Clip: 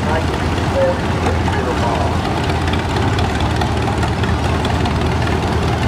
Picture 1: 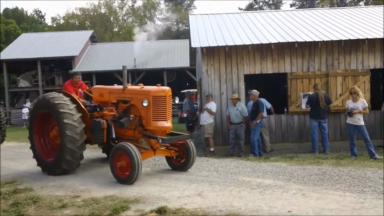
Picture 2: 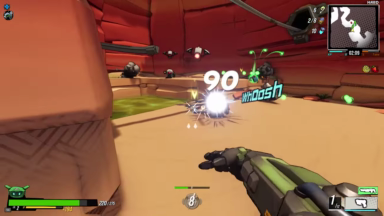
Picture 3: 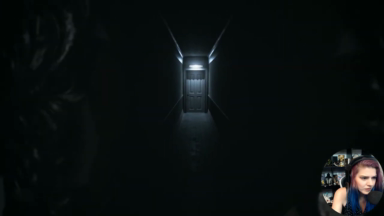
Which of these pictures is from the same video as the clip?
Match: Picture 1